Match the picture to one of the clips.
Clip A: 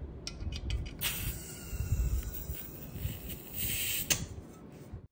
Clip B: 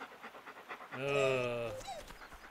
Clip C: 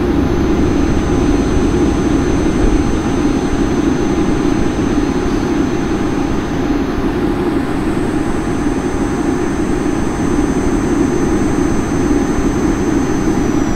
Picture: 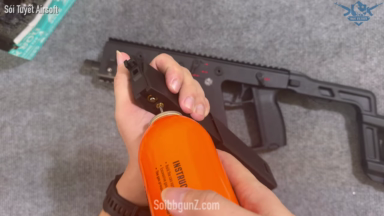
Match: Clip A